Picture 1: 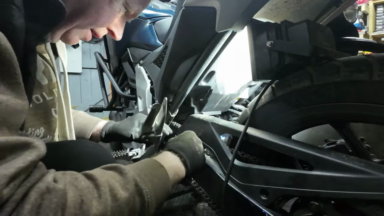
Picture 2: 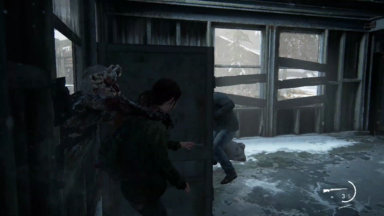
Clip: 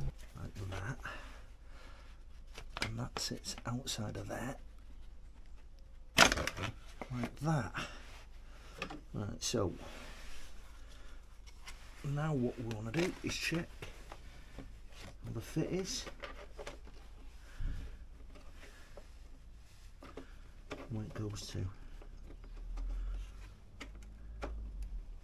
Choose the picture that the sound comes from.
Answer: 1